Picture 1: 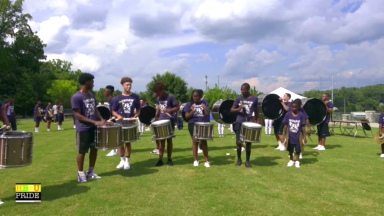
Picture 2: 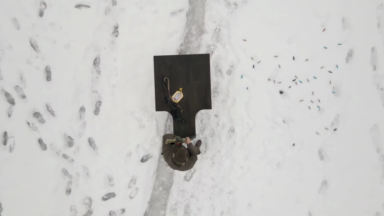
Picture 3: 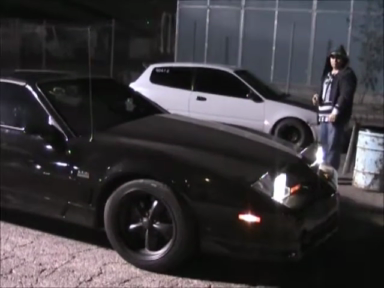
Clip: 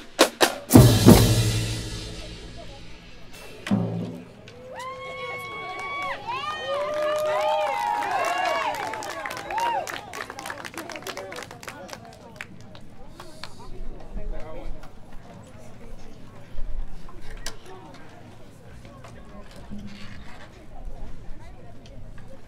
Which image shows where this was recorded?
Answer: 1